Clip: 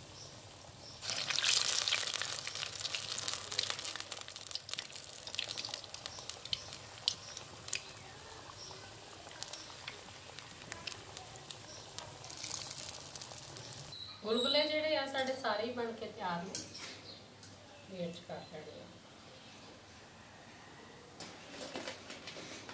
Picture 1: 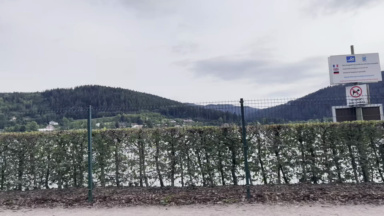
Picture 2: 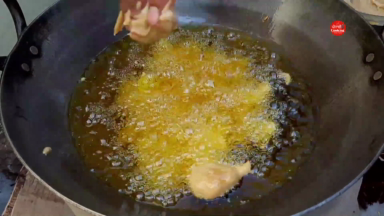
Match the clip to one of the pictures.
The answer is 2